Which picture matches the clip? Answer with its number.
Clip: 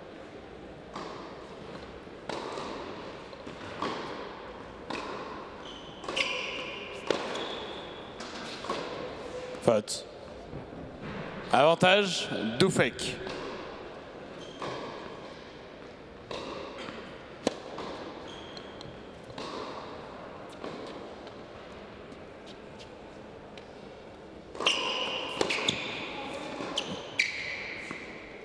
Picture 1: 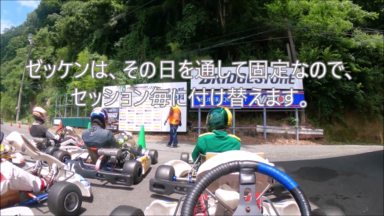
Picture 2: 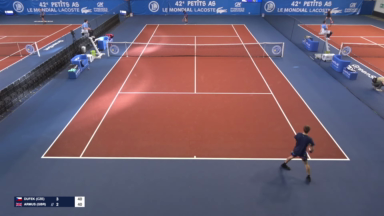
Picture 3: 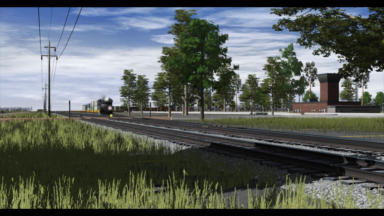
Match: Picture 2